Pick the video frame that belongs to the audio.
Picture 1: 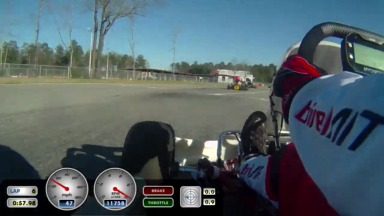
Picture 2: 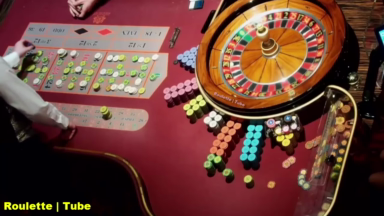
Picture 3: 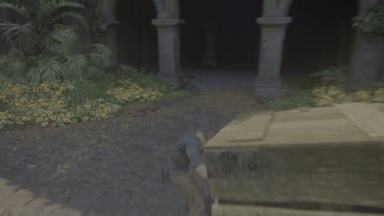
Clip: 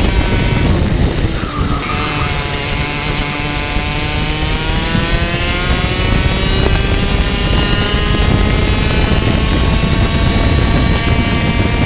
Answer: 1